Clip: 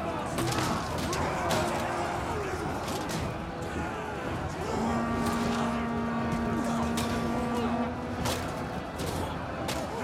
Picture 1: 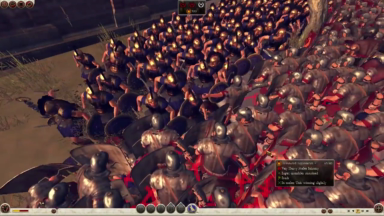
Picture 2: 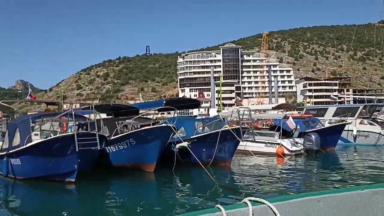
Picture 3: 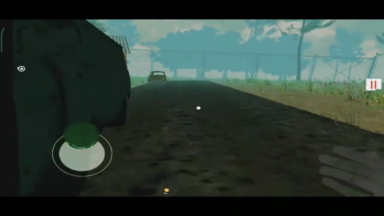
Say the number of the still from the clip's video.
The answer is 1